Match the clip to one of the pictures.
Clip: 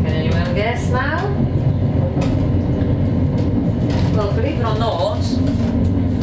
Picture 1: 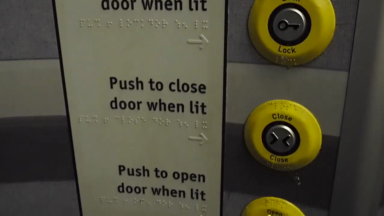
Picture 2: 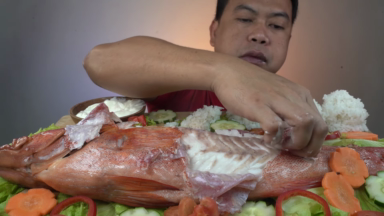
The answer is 1